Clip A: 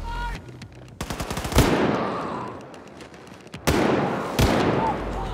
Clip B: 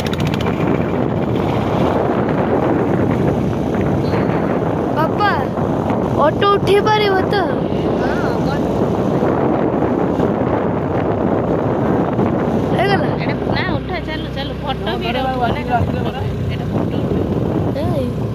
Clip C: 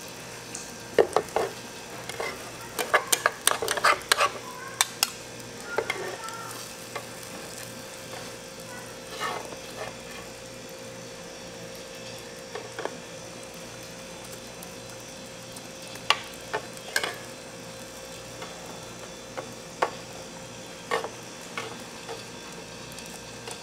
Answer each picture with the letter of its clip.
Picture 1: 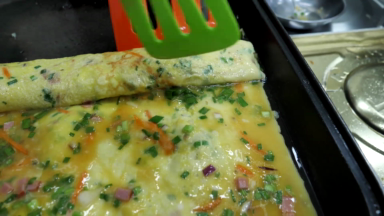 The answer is C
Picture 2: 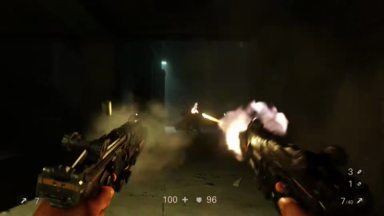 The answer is A